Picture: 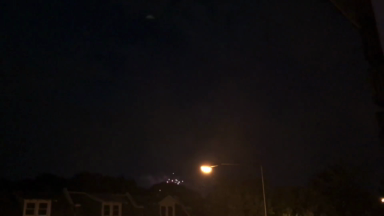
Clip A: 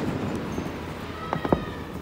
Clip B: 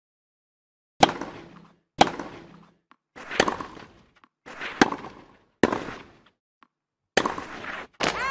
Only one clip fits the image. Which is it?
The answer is A